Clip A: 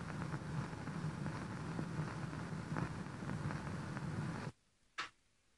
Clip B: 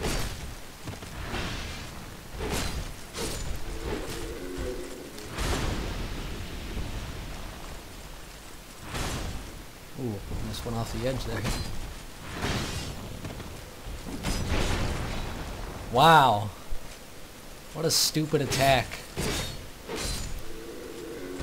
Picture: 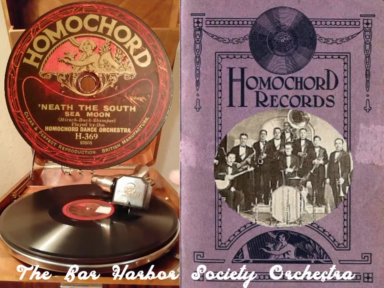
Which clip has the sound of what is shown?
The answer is A